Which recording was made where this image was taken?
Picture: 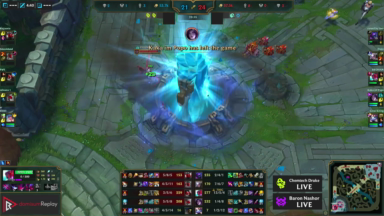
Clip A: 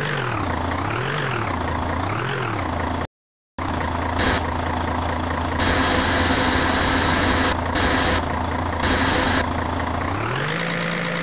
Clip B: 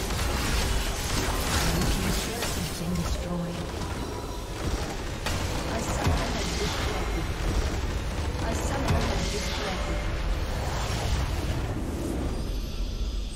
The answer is B